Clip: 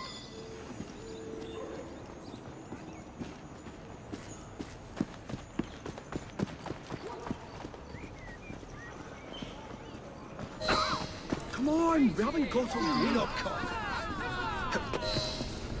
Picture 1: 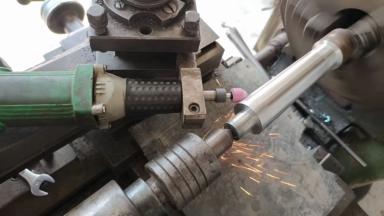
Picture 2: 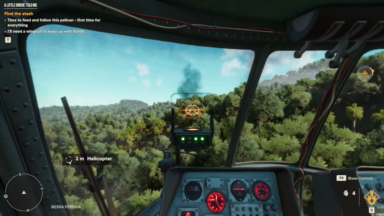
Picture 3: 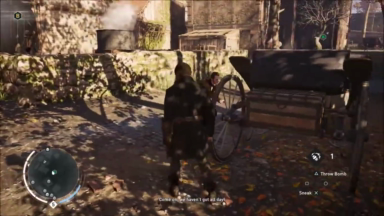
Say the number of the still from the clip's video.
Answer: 3